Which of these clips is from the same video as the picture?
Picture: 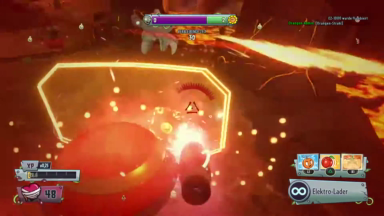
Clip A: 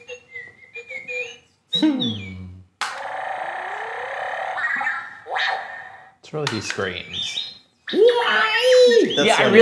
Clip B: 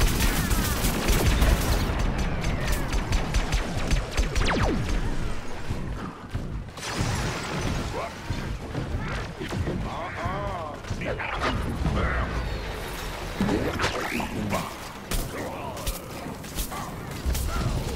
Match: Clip B